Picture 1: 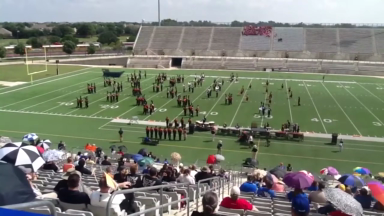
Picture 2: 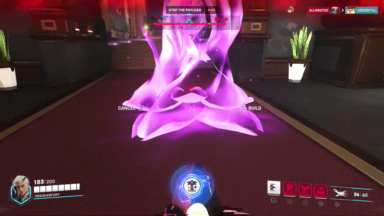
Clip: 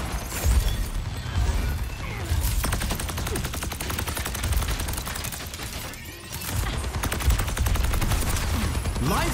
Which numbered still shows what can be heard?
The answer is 2